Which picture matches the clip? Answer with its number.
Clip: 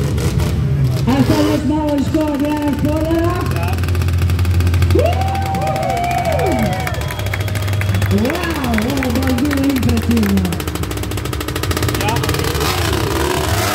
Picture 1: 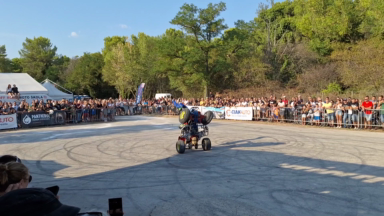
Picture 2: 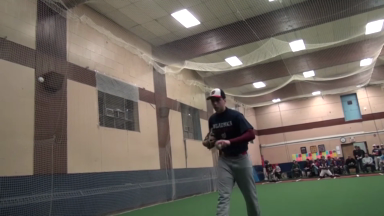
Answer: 1